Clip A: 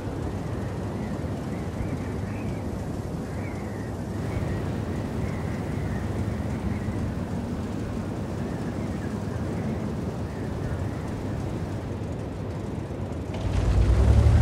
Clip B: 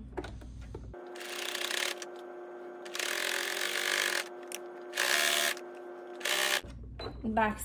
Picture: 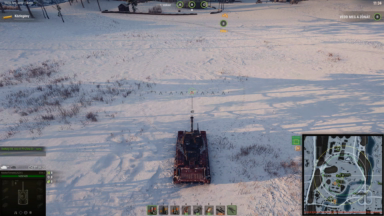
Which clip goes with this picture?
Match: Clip A